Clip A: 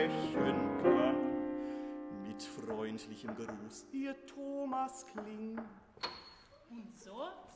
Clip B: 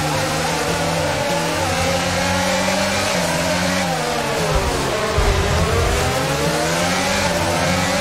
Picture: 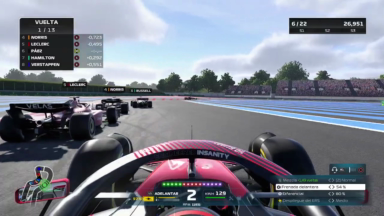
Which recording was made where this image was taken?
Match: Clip B